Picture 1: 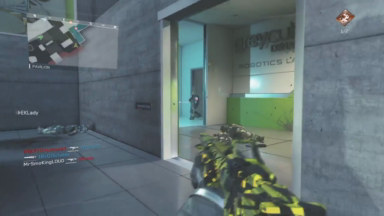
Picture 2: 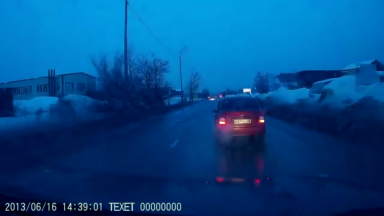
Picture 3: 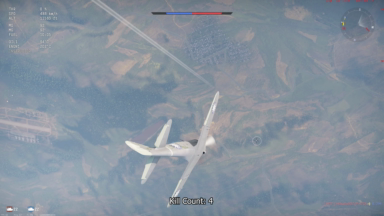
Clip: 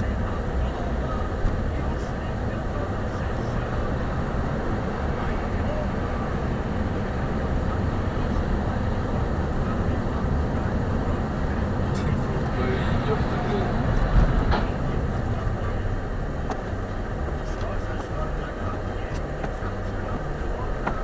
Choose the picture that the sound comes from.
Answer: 2